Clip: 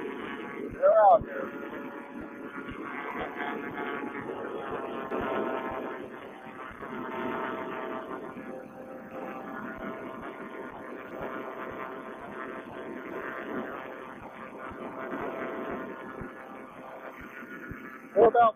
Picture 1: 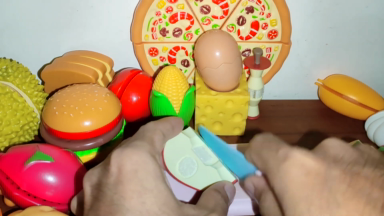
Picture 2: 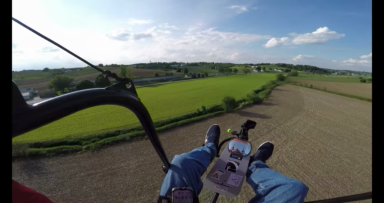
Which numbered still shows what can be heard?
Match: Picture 2